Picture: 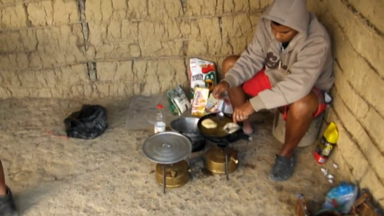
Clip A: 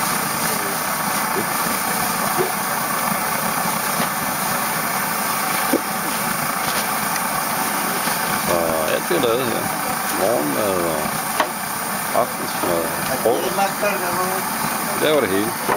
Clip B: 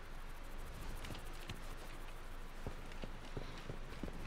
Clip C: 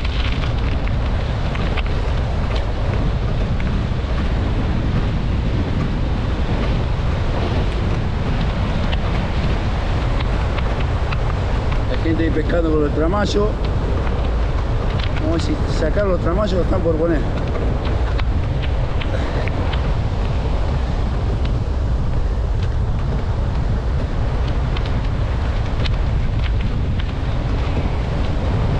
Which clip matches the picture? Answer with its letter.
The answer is A